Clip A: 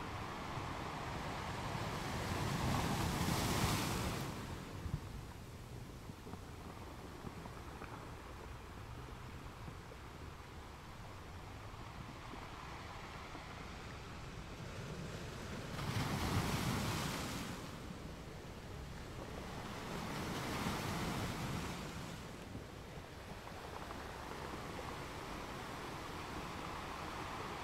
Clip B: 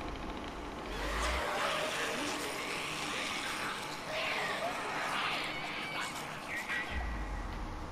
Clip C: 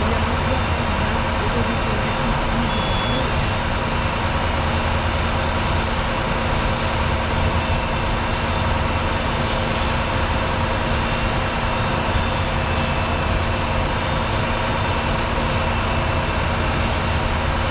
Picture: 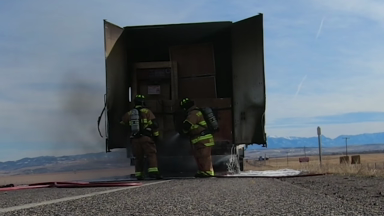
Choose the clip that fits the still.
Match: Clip C